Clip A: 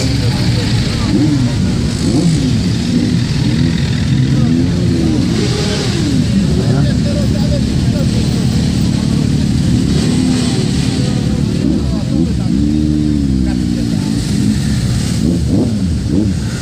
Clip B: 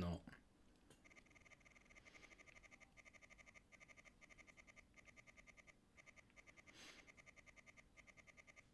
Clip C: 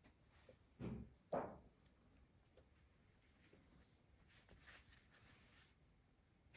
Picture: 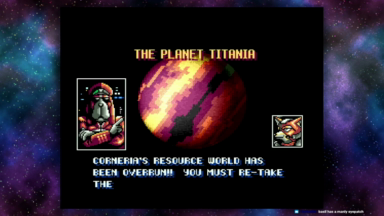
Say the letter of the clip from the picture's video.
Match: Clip B